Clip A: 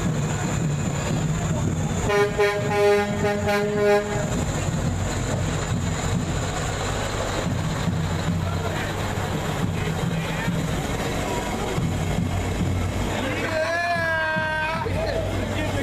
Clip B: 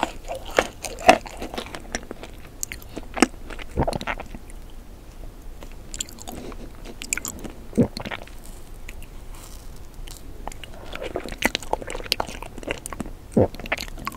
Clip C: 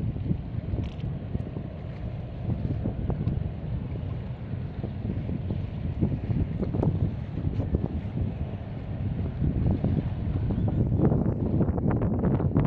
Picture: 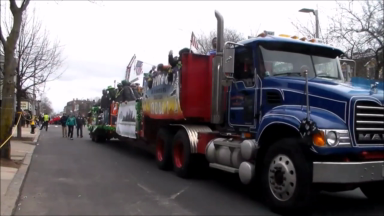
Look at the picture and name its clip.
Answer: A